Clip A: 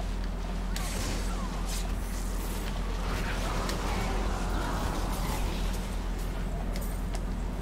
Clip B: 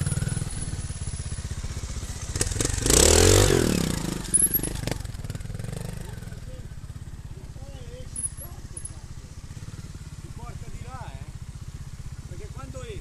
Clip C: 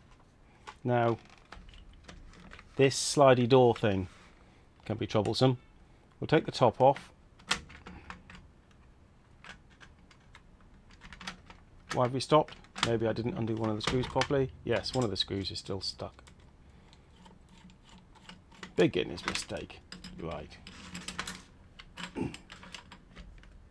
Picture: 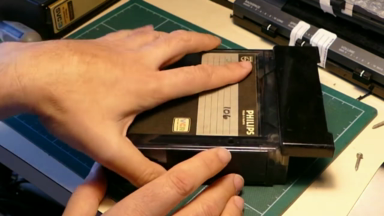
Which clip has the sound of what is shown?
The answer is C